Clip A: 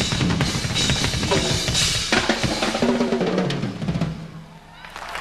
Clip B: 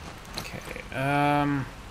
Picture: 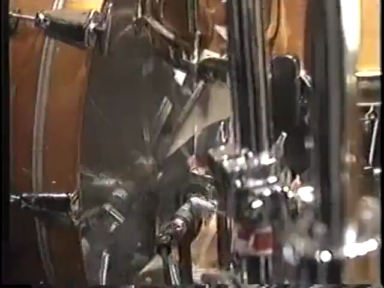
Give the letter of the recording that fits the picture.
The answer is A